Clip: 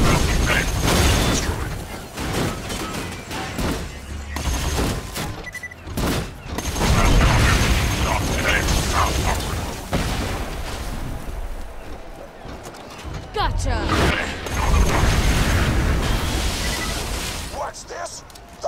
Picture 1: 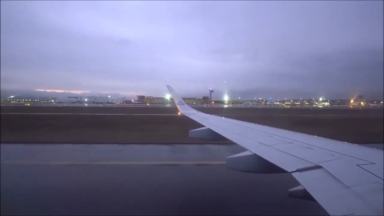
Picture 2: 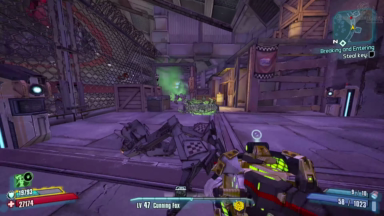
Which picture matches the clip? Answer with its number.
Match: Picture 2